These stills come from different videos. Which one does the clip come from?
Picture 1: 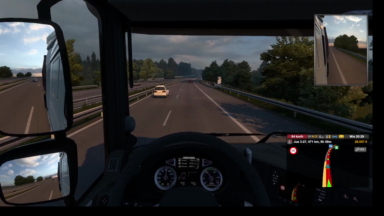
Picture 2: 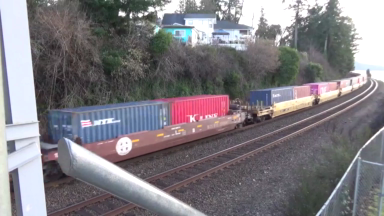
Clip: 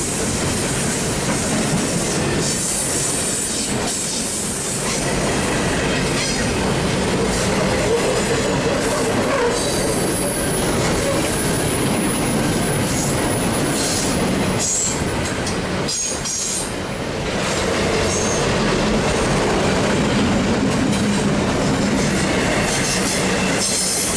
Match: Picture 2